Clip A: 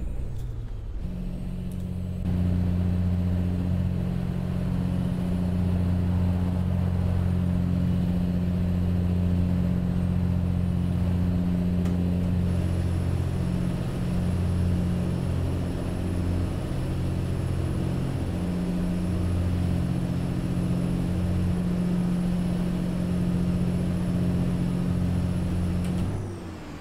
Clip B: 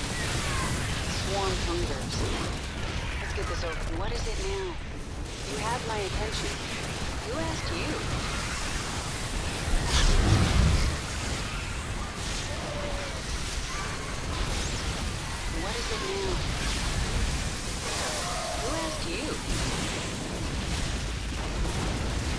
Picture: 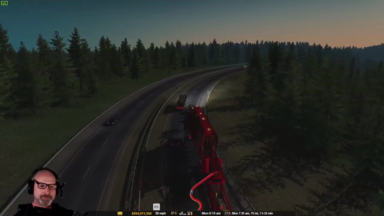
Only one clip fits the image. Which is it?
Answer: A